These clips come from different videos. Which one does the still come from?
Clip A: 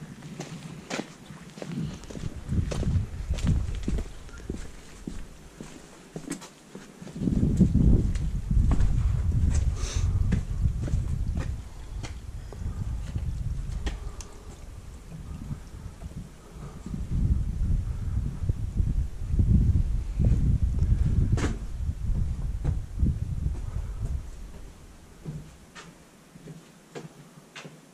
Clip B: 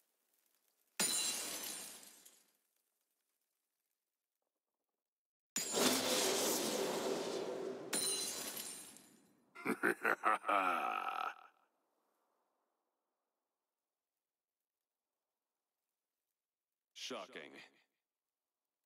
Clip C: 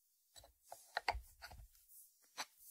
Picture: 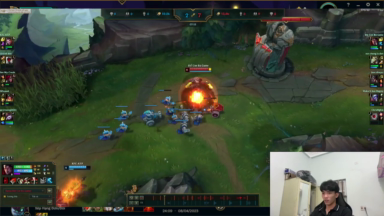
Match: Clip B